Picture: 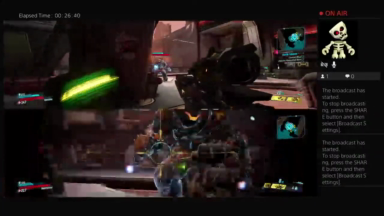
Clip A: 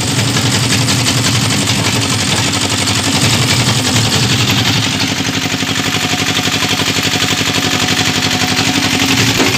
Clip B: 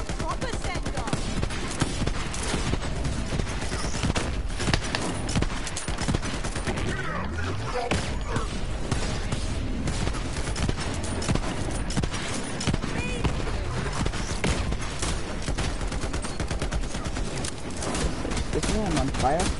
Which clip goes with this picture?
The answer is B